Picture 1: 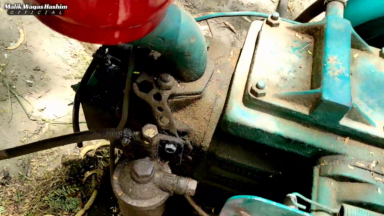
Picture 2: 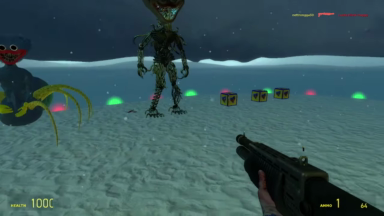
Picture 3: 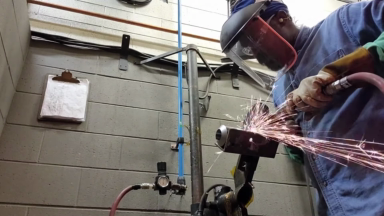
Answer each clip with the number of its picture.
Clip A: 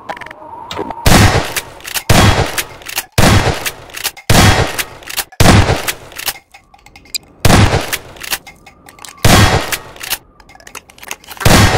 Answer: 2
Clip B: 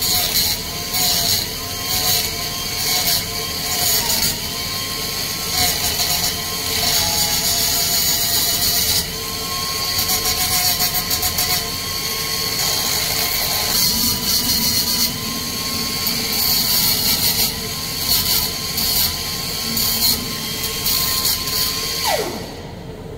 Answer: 3